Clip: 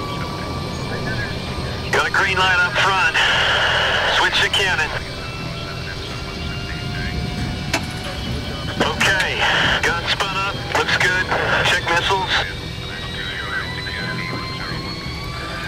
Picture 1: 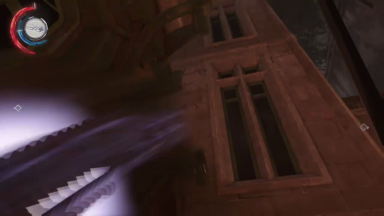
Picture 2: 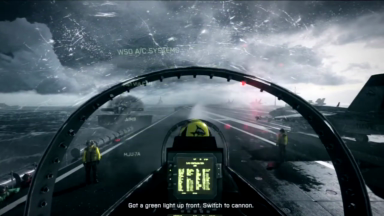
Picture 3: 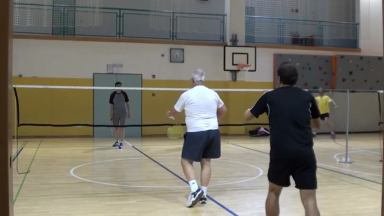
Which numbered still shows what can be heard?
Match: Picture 2